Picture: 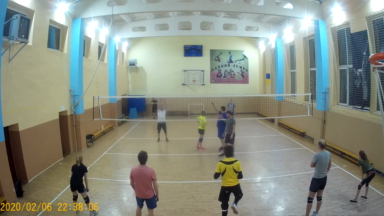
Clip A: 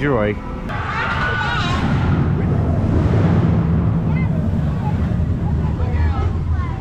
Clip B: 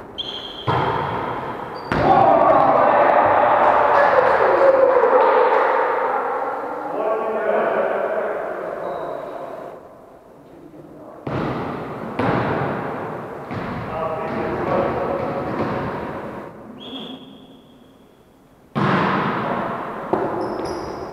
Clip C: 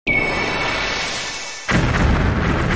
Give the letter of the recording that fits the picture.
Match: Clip B